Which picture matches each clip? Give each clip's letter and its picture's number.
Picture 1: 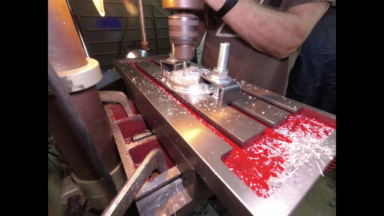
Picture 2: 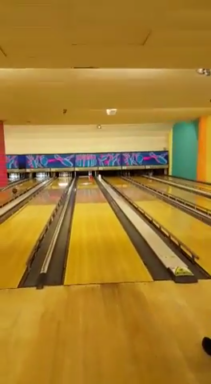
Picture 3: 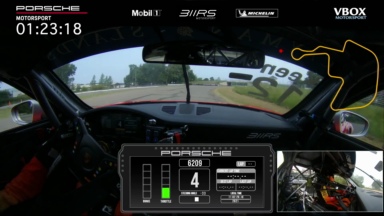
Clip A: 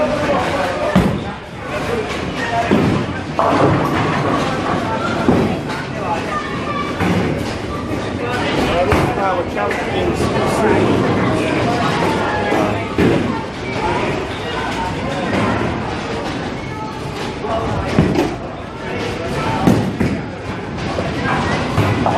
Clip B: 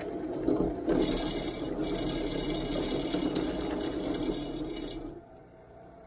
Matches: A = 2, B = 1